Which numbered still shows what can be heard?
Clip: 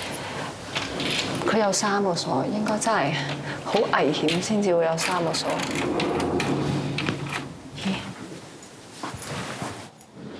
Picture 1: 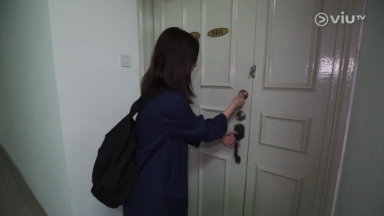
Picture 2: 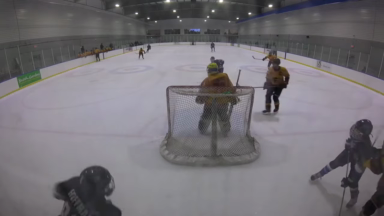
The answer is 1